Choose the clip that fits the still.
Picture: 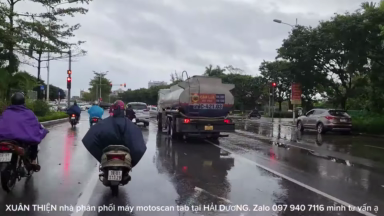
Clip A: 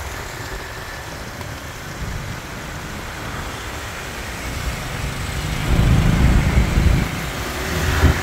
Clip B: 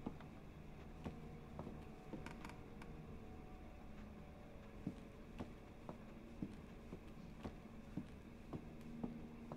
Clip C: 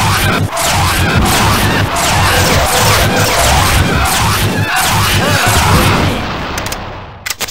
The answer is A